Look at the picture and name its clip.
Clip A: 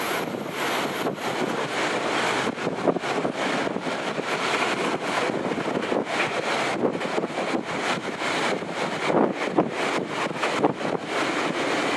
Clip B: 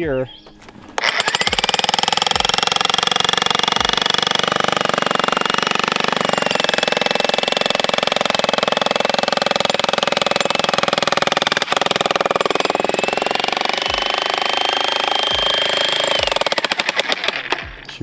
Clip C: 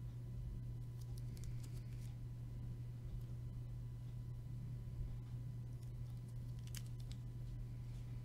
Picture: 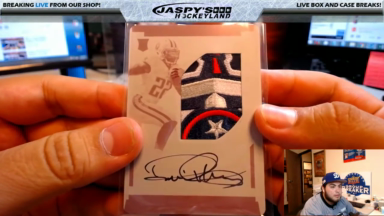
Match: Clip C